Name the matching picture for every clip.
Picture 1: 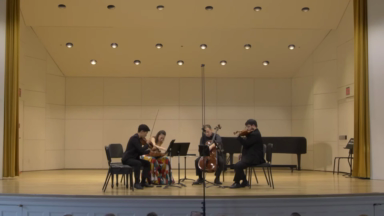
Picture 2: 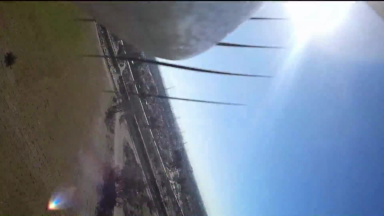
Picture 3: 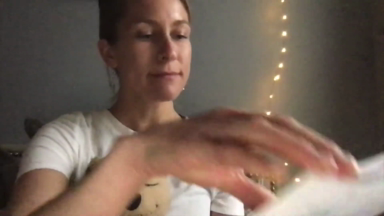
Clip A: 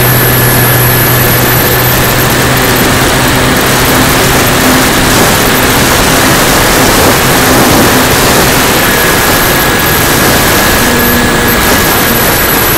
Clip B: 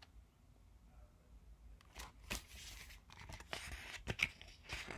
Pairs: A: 2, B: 3